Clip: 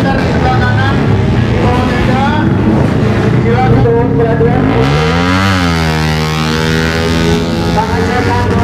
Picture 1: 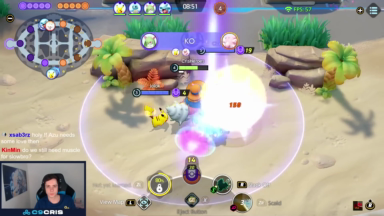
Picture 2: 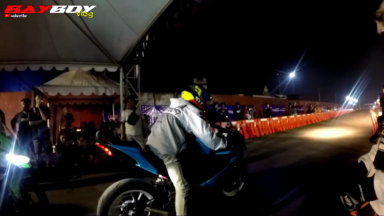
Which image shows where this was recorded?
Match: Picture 2